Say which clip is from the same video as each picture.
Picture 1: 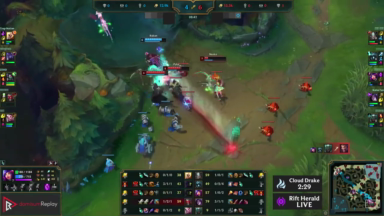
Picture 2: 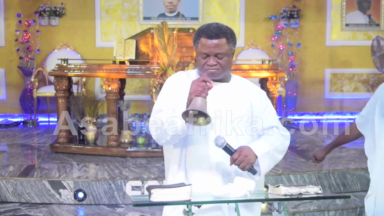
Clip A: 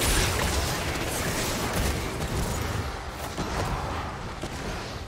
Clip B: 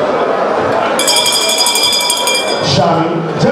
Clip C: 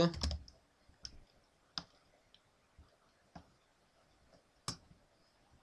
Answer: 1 A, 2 B